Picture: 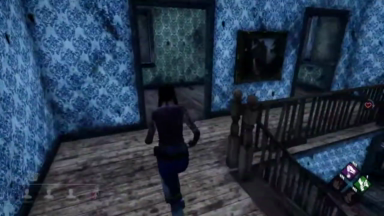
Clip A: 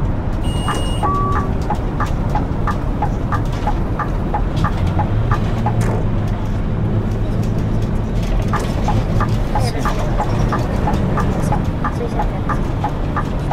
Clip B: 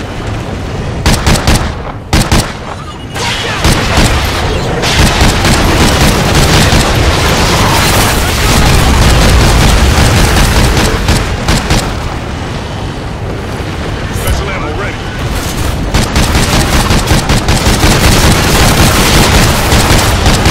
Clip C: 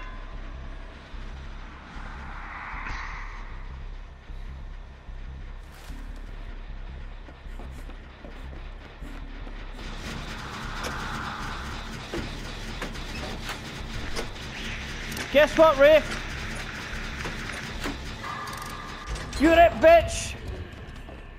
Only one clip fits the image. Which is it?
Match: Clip C